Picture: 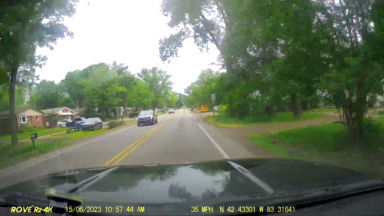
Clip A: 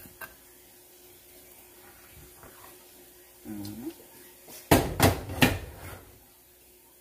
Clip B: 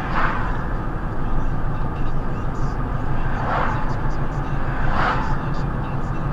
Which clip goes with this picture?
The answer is B